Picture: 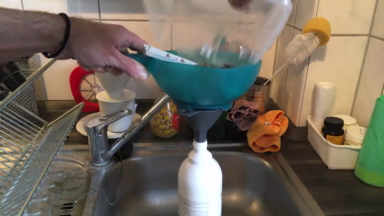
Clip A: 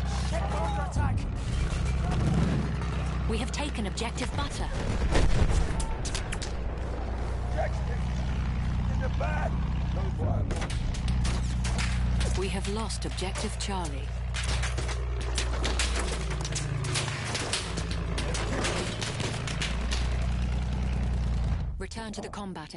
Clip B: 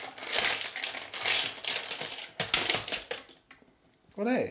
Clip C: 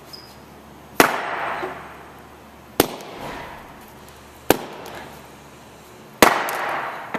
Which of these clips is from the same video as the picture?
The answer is B